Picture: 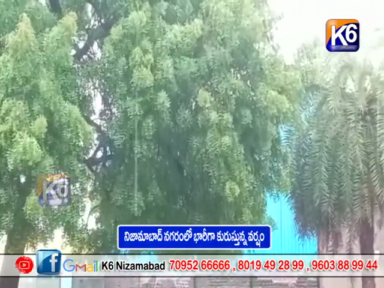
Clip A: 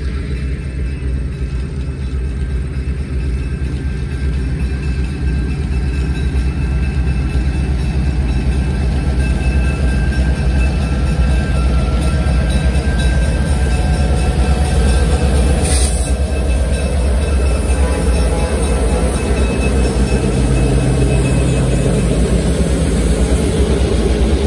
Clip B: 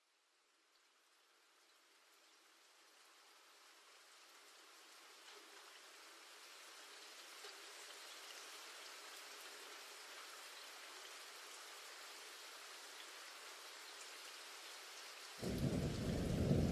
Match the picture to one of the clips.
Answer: B